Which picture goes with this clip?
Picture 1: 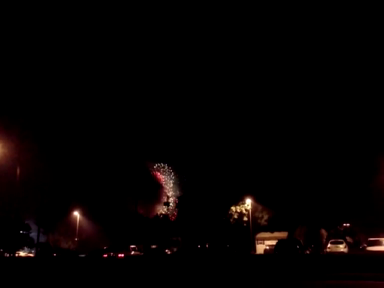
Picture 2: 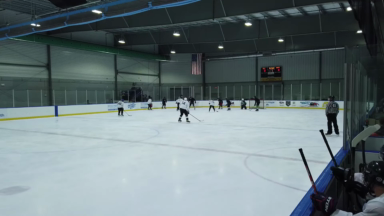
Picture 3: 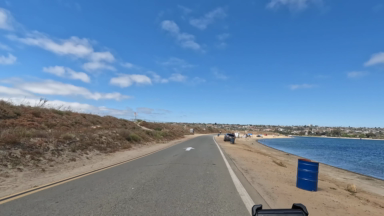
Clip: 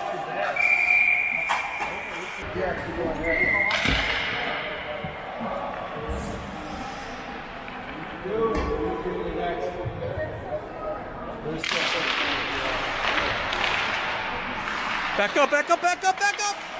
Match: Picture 2